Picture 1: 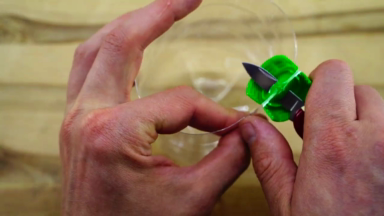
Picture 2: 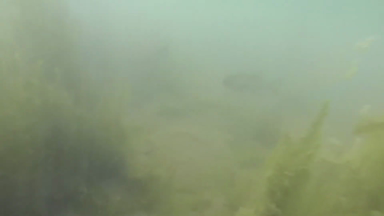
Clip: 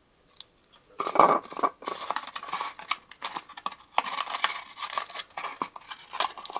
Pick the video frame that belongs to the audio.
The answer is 1